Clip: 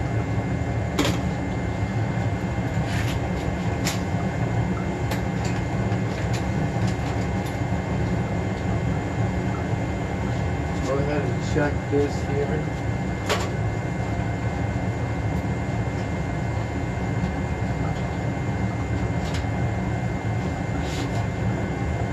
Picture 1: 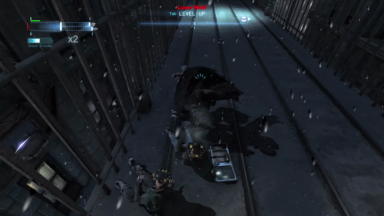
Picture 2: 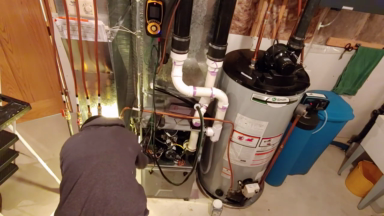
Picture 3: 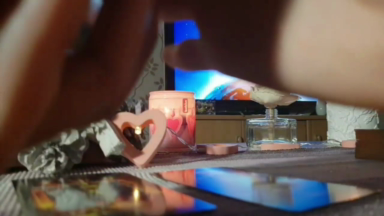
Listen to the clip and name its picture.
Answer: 2